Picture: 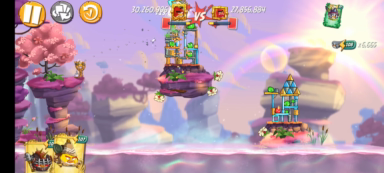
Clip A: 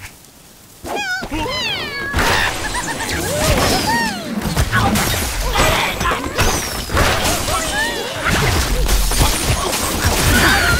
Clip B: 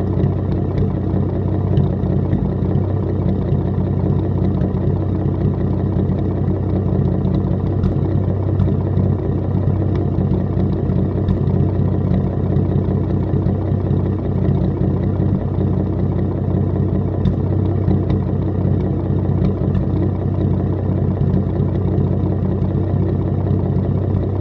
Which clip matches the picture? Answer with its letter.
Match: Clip A